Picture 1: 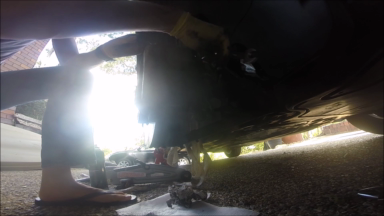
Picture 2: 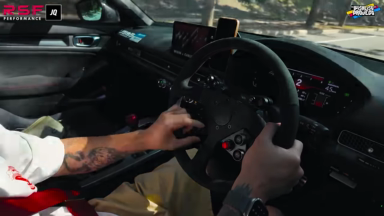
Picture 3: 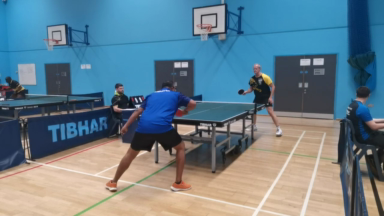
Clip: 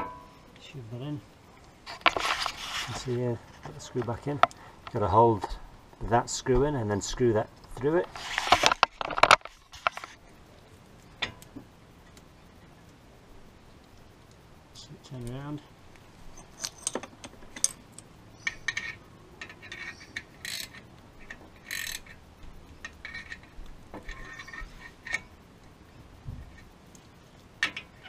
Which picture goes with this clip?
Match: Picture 1